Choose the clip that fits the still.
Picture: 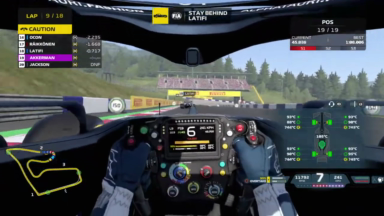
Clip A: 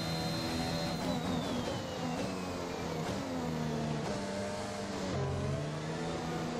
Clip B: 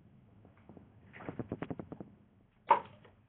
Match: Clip A